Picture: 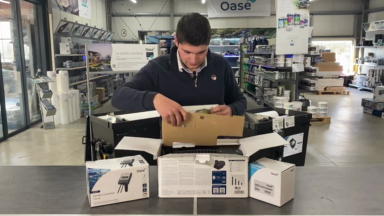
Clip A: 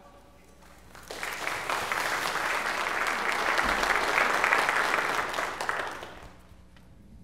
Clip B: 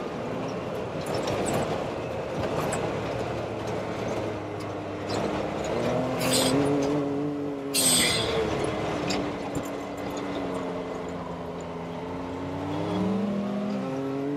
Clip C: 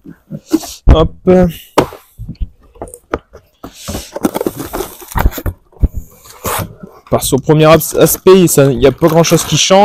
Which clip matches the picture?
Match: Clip C